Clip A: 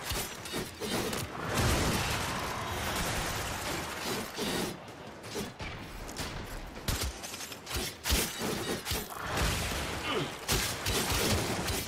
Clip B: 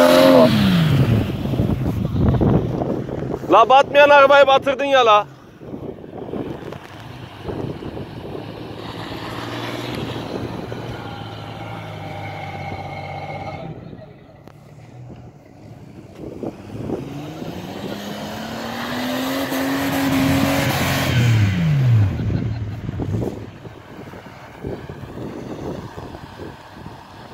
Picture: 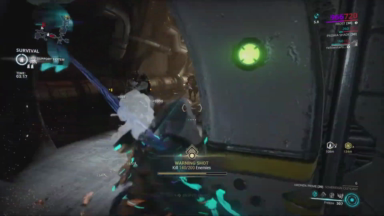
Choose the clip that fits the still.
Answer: A